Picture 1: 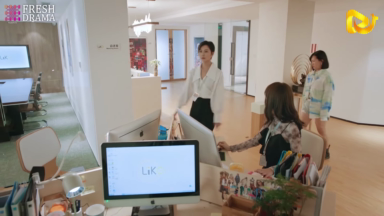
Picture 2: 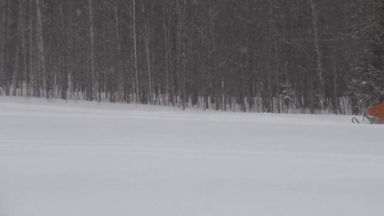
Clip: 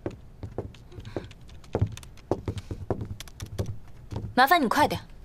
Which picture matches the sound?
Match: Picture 1